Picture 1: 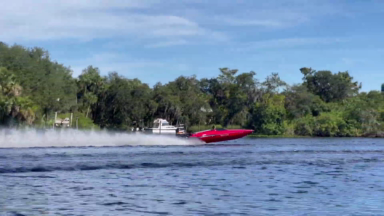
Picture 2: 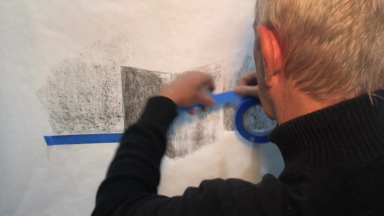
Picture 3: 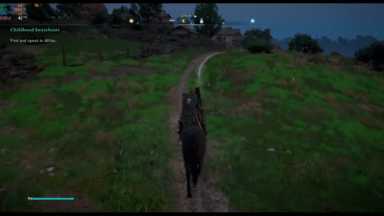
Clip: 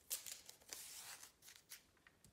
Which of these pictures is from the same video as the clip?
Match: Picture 2